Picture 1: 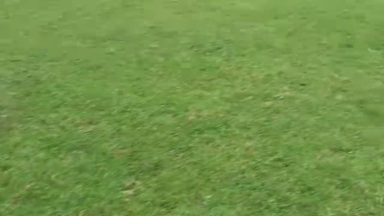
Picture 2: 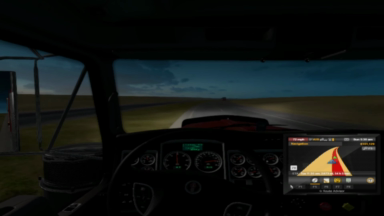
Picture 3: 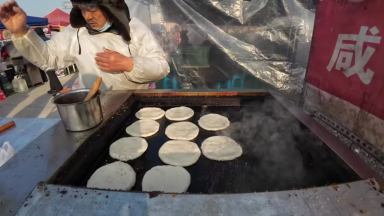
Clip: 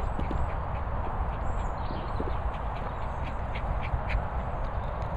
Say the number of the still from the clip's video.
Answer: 1